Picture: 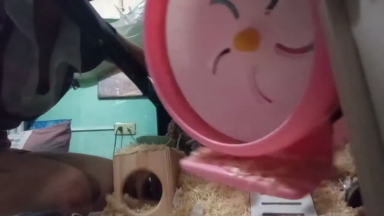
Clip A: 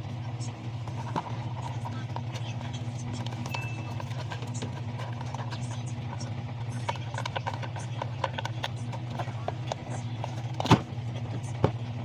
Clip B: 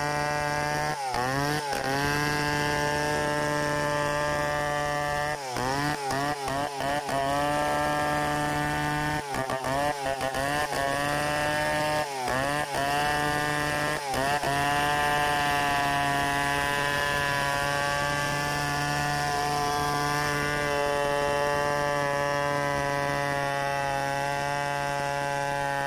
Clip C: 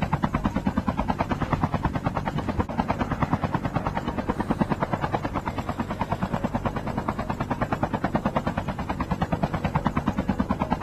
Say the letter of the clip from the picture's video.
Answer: A